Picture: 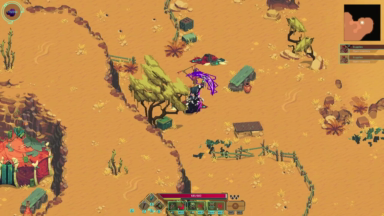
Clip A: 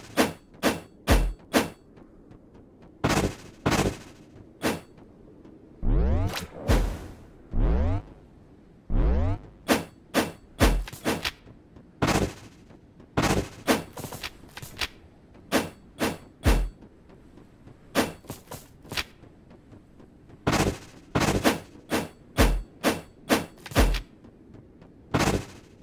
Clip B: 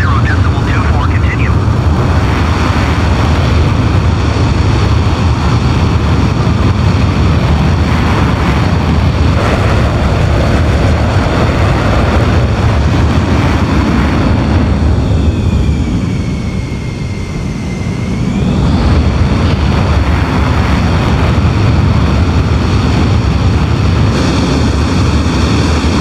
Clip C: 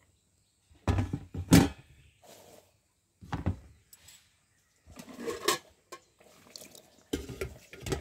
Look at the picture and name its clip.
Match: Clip A